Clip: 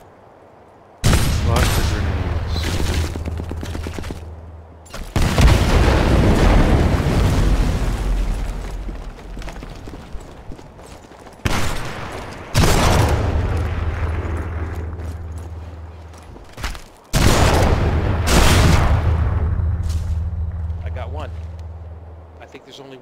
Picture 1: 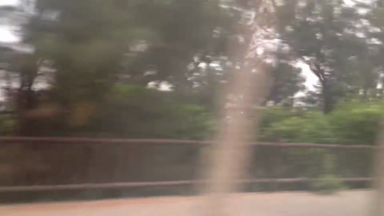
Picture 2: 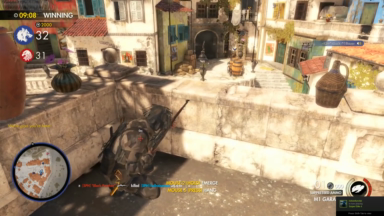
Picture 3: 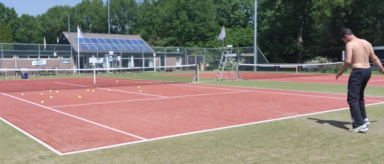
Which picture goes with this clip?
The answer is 2